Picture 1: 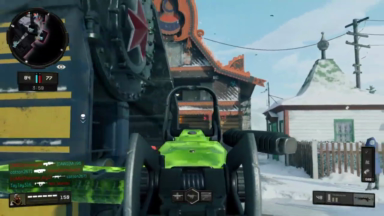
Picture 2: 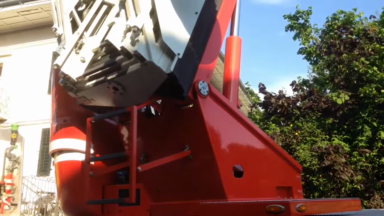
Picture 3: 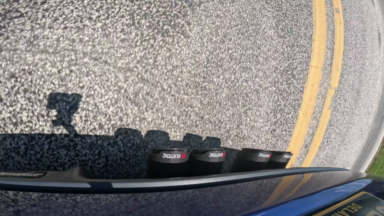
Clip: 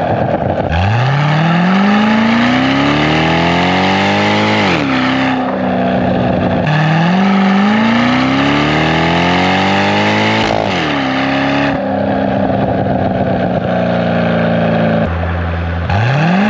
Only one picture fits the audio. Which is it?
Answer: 3